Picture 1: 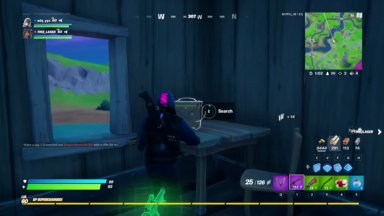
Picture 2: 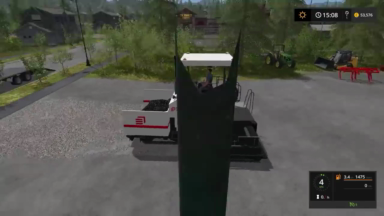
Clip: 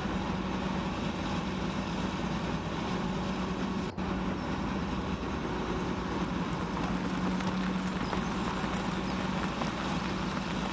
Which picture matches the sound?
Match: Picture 2